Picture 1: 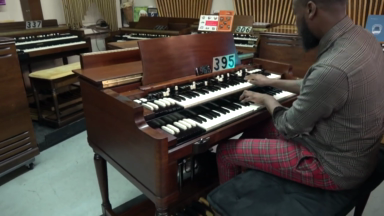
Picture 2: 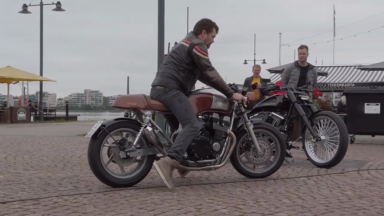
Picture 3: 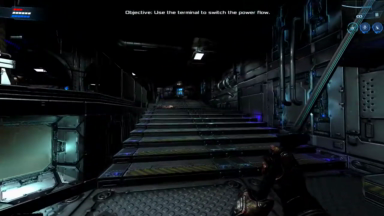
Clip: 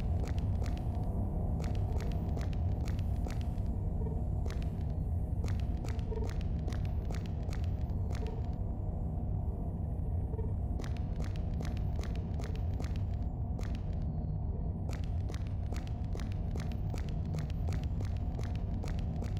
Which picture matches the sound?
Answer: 3